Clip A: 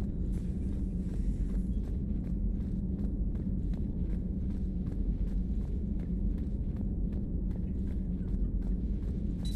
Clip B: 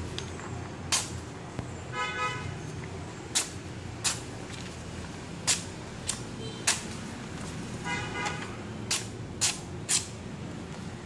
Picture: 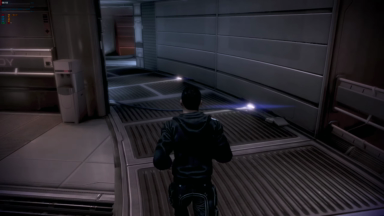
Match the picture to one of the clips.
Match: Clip A